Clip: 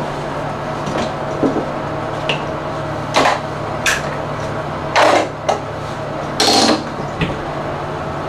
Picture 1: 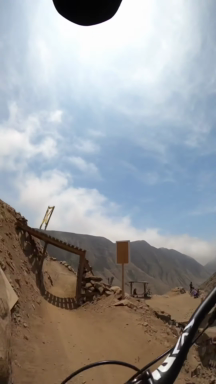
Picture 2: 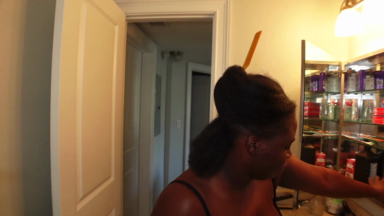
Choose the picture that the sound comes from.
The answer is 2